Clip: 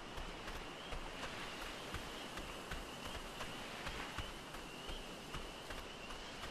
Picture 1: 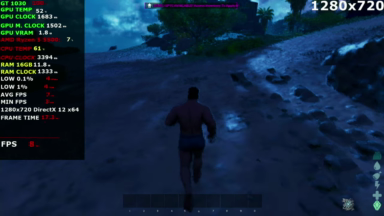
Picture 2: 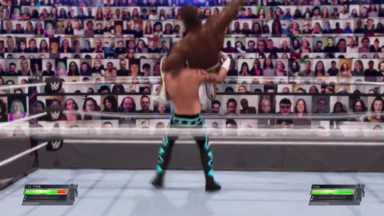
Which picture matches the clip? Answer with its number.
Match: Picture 1